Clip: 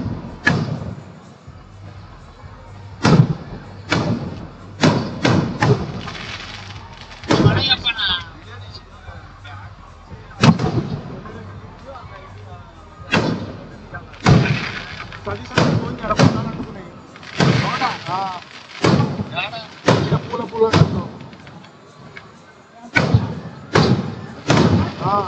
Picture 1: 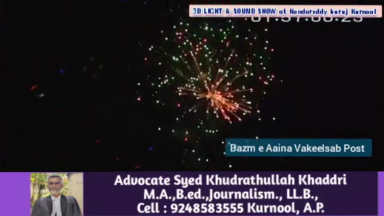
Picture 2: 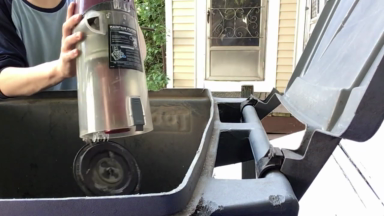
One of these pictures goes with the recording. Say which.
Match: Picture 1